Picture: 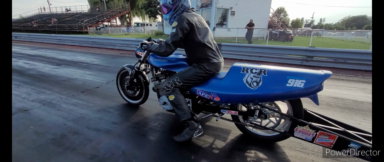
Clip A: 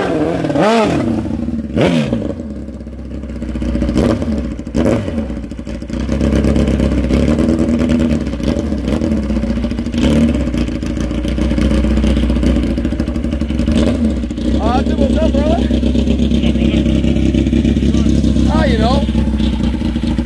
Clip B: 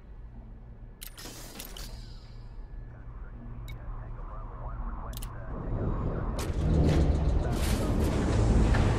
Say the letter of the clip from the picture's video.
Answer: A